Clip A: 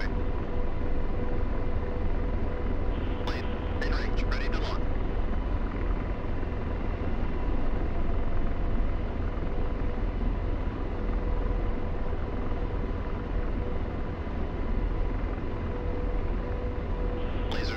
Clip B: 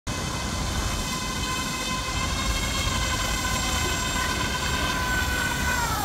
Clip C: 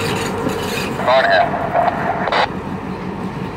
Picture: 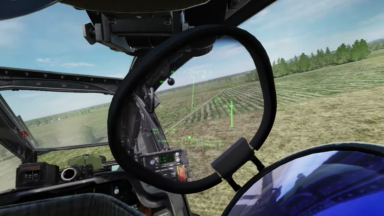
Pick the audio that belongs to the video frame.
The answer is A